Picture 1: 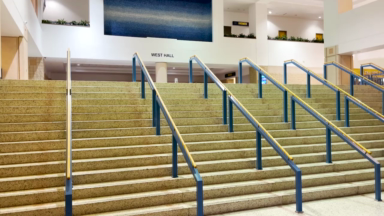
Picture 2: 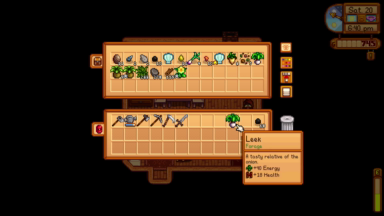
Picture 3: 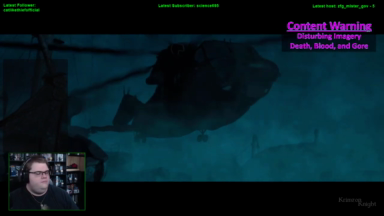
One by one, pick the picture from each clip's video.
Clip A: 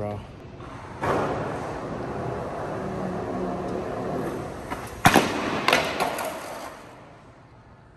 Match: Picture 1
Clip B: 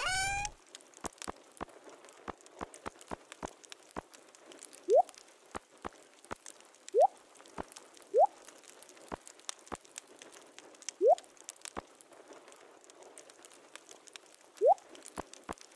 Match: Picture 2